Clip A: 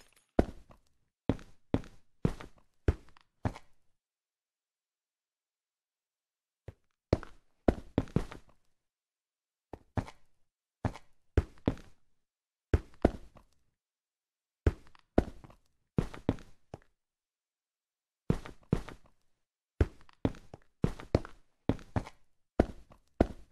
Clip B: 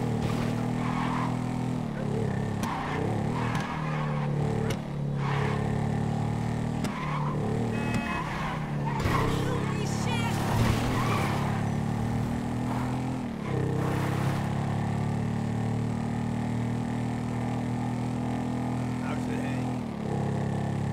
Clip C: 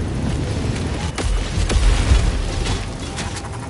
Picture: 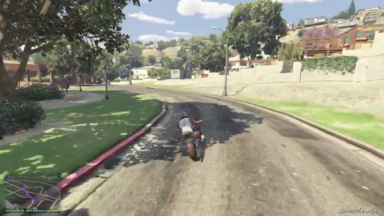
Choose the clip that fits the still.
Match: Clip B